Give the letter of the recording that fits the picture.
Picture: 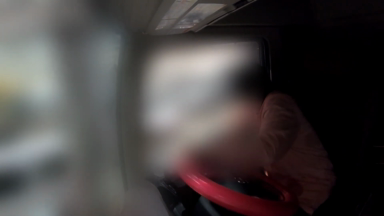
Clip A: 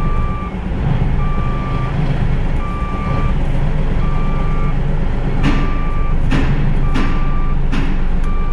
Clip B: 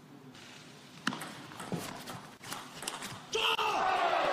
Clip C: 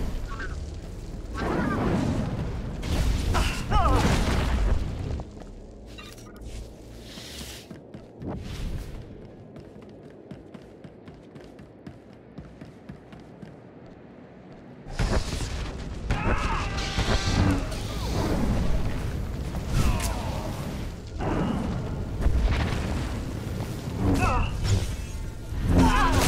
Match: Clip A